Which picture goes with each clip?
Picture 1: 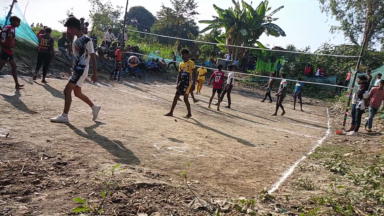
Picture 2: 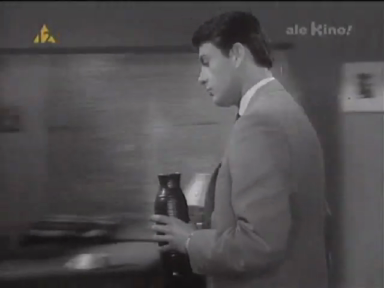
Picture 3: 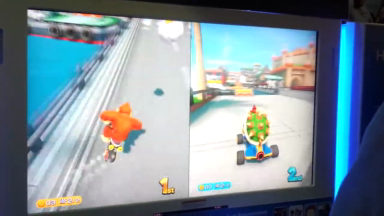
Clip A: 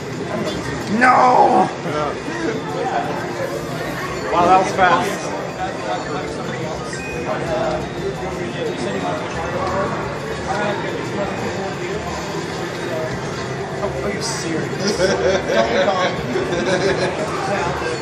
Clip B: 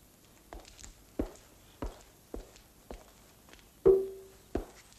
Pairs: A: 3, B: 2